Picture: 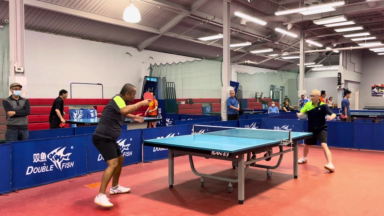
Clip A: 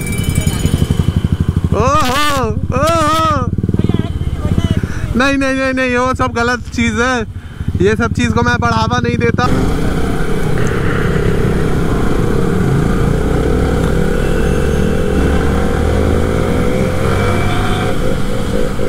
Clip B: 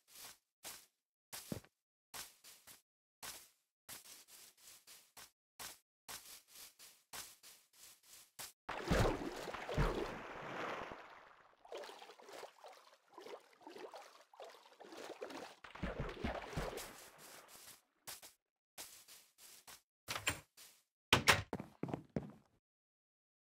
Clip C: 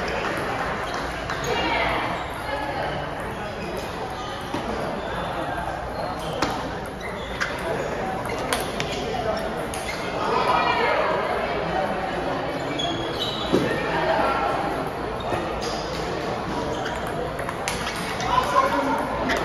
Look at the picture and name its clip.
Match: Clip C